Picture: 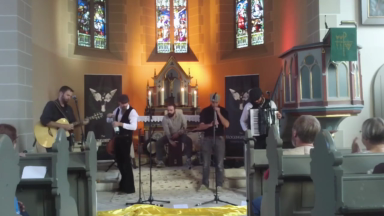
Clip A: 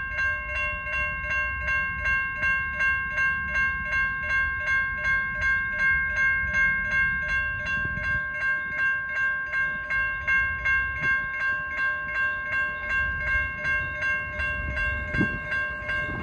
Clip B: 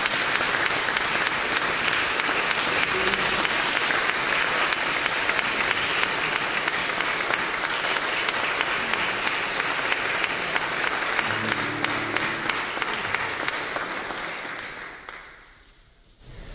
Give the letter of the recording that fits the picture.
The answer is B